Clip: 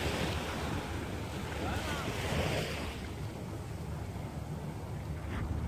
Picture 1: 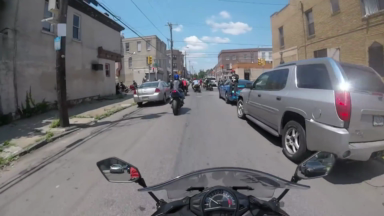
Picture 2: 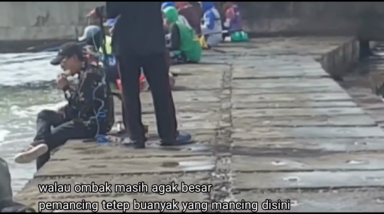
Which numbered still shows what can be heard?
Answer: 2